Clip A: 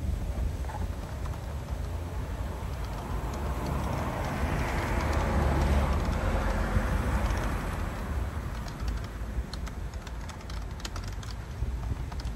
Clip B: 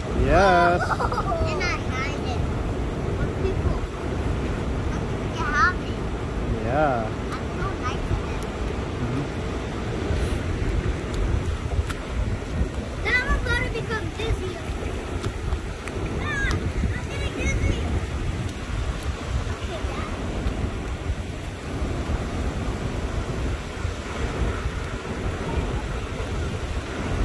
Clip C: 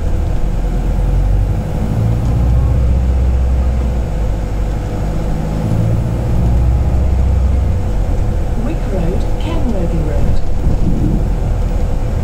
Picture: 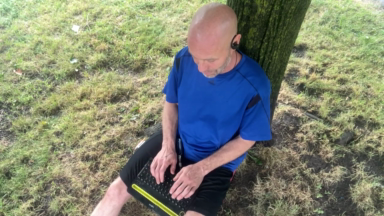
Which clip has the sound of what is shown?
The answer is A